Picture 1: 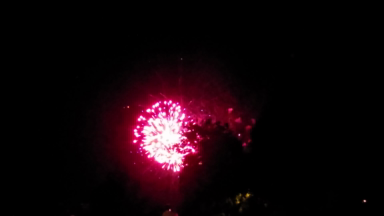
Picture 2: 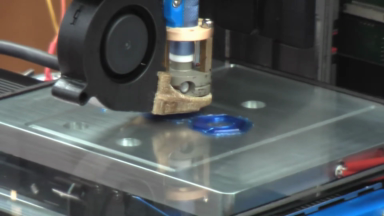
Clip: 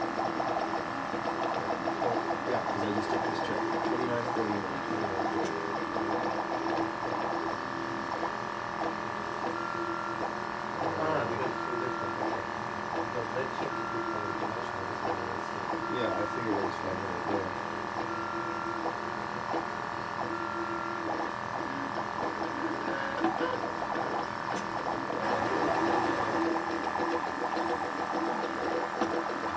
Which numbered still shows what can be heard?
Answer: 2